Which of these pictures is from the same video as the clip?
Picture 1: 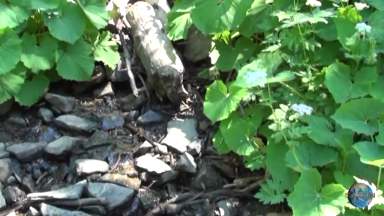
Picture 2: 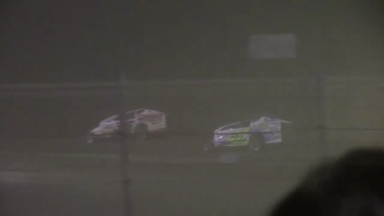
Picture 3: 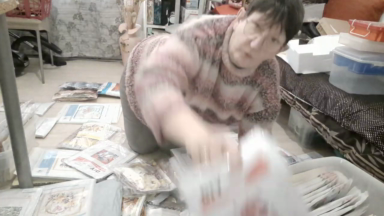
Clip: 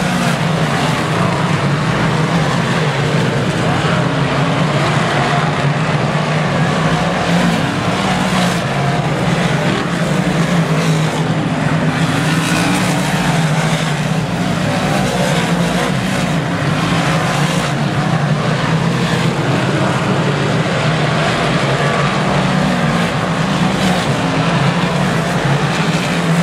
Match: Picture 2